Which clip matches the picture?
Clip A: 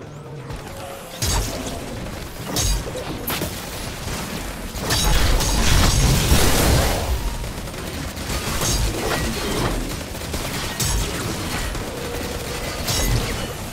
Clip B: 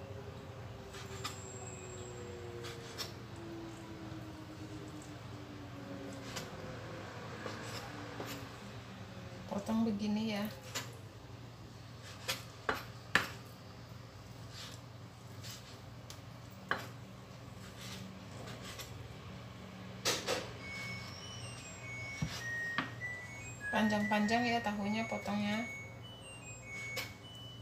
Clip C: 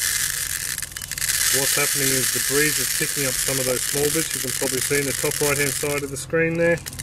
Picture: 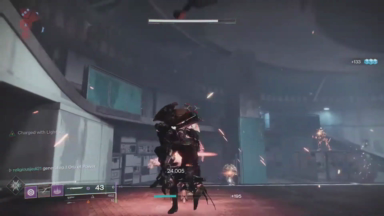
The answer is A